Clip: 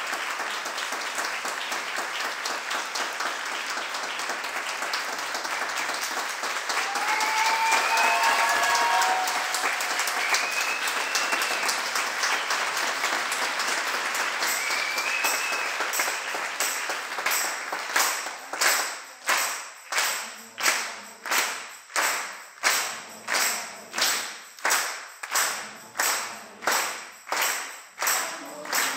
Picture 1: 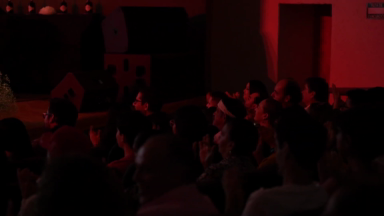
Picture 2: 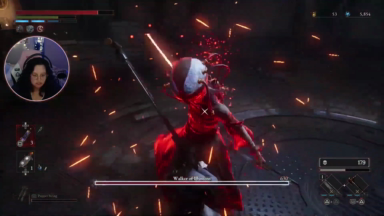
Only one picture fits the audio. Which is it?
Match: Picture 1